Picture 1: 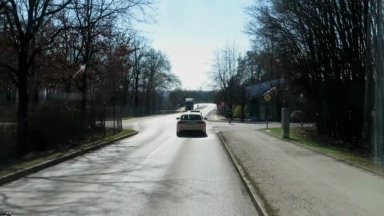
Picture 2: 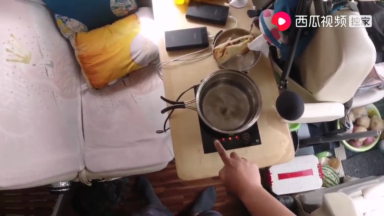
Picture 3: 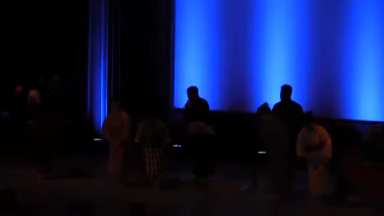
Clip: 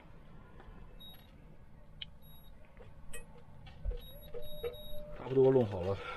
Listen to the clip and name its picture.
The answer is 2